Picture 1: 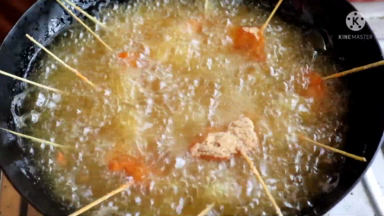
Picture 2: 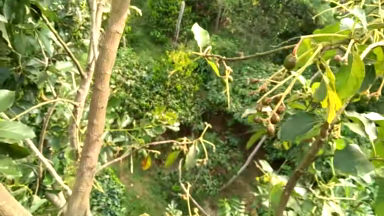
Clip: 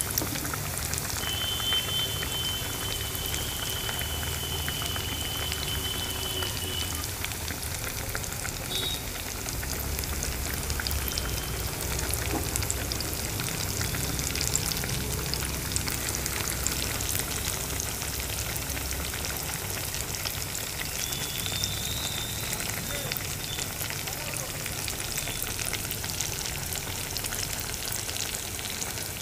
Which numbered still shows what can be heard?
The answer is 1